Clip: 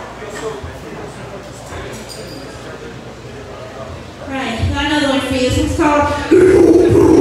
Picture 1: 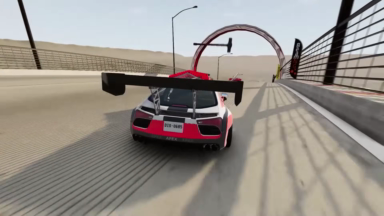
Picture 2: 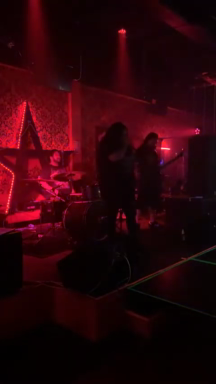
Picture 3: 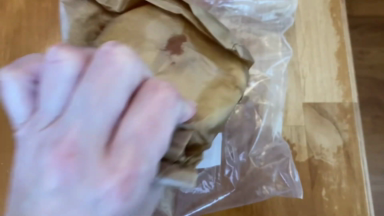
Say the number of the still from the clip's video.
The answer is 2